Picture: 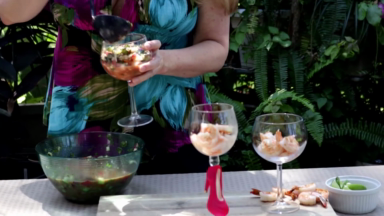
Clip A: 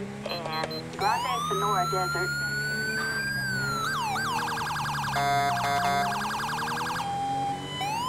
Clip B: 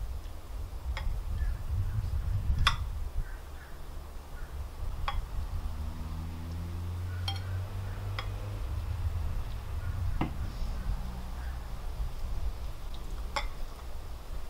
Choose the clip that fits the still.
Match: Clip B